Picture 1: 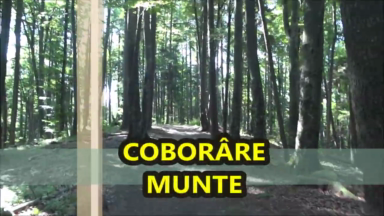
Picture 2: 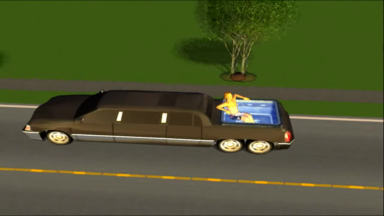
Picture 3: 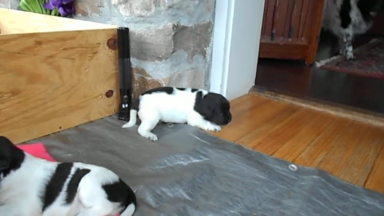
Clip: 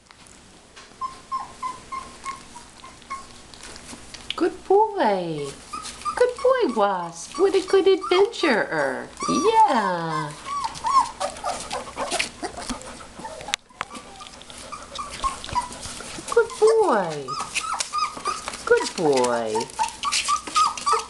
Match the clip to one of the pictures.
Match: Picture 3